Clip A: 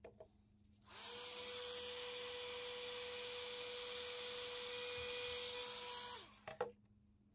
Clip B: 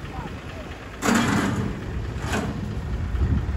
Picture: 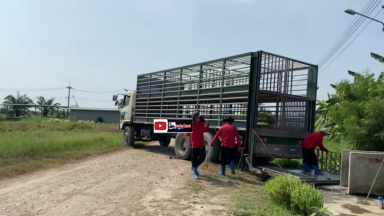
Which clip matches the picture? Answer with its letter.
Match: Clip B